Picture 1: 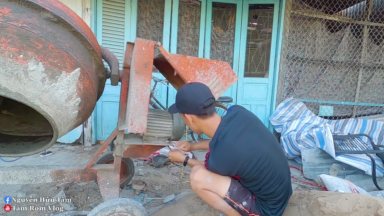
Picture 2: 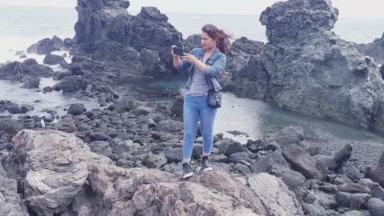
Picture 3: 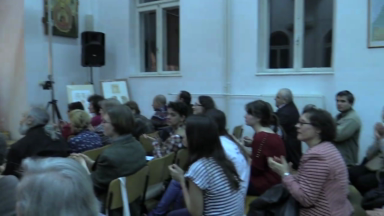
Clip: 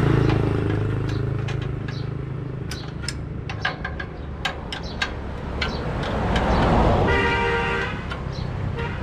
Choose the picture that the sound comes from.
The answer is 1